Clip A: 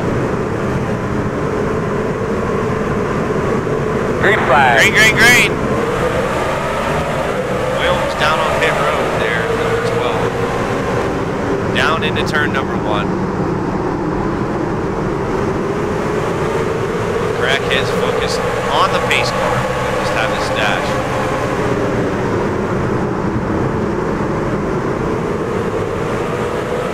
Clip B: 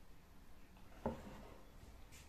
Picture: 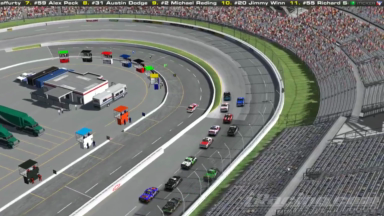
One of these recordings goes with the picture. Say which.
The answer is A